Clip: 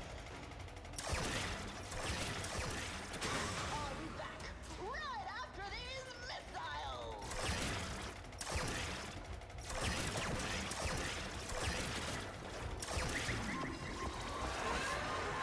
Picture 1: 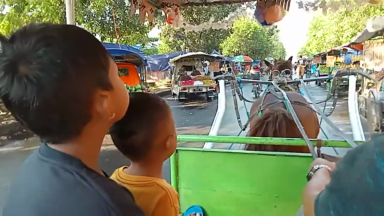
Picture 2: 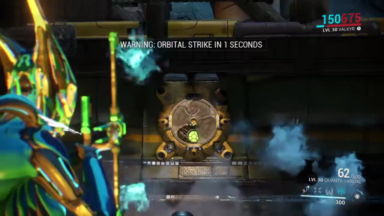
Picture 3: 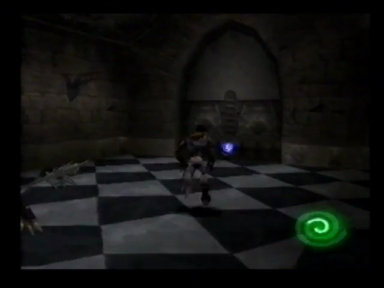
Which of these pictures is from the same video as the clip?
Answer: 2